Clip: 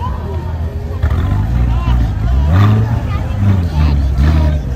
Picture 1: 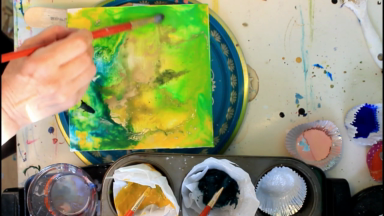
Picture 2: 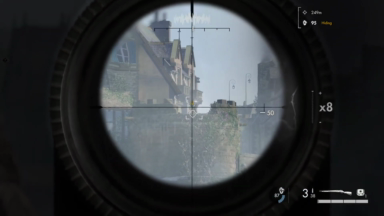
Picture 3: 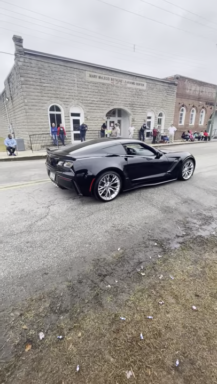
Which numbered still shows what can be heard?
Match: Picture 3